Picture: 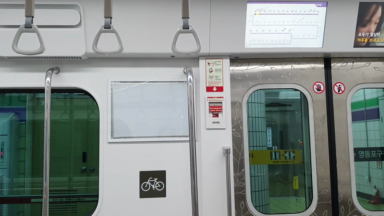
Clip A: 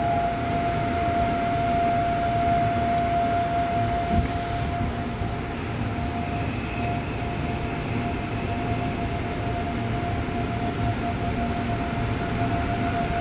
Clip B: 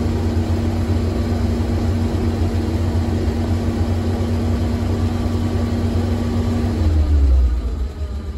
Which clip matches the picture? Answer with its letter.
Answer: A